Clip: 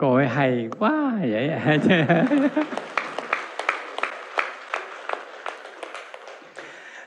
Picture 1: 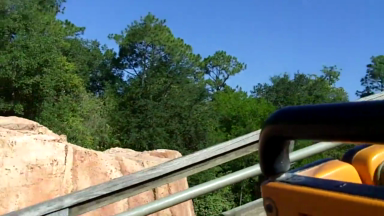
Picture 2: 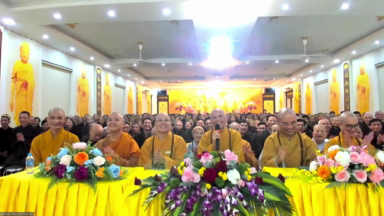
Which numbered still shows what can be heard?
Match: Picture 2